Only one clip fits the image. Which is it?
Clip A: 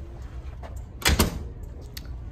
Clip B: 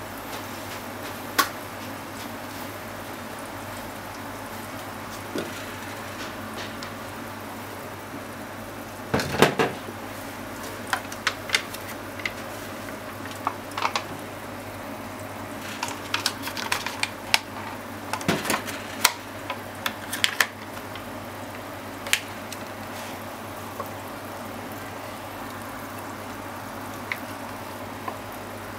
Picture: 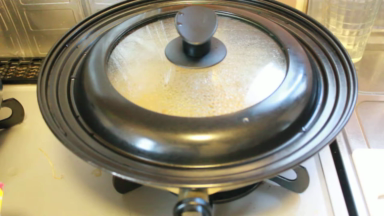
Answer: B